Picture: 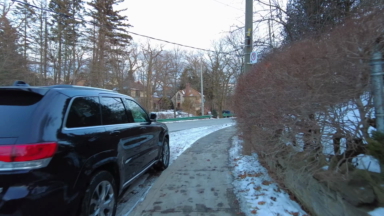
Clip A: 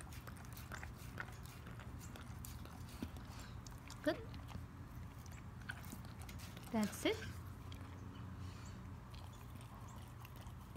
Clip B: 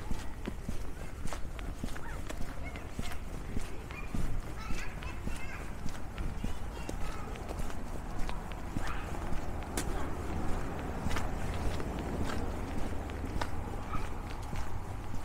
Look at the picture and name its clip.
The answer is B